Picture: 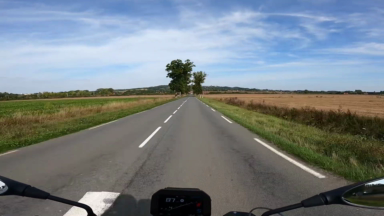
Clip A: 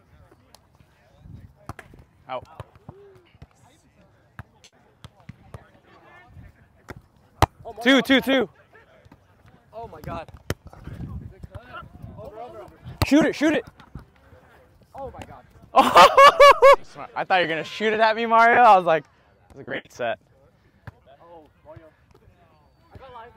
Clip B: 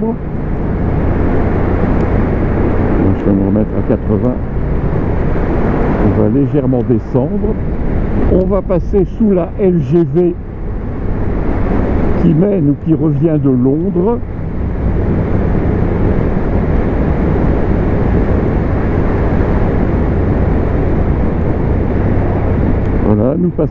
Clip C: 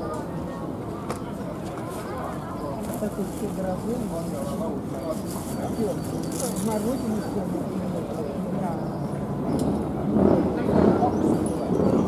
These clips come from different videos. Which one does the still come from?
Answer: B